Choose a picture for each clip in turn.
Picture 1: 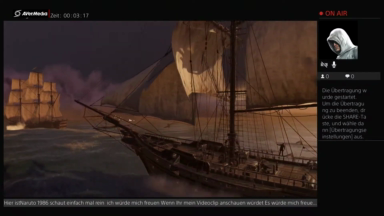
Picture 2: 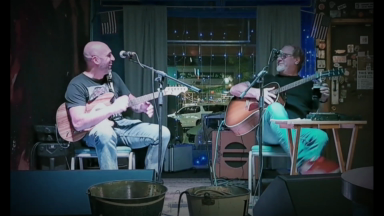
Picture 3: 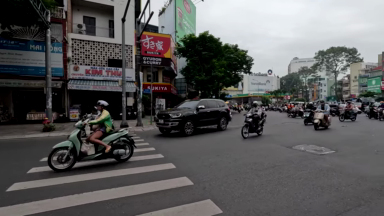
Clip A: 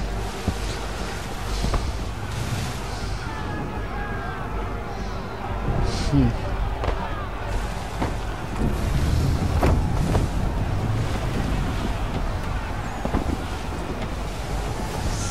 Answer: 1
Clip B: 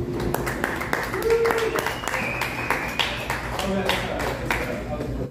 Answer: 2